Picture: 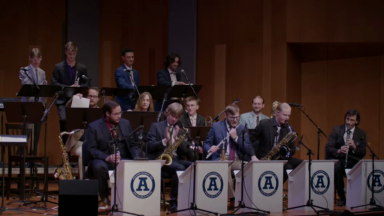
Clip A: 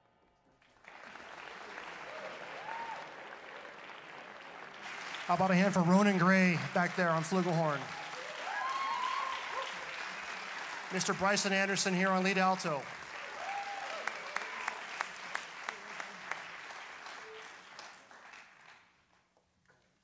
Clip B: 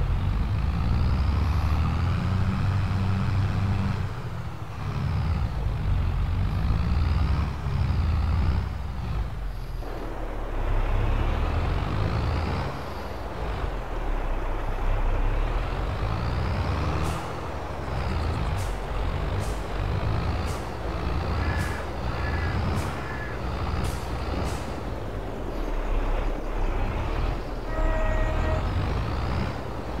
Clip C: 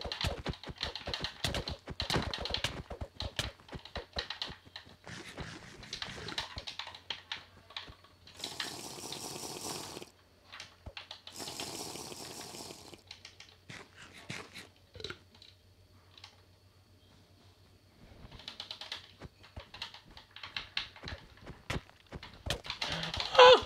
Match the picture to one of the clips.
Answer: A